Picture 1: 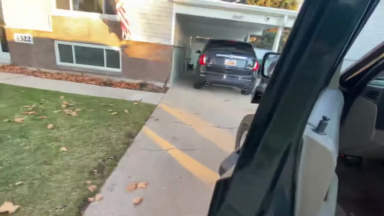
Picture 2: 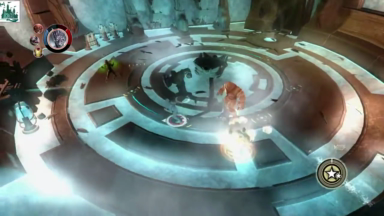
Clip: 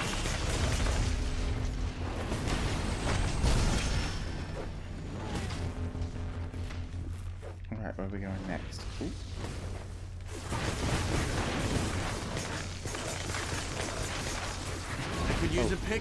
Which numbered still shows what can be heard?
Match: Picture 2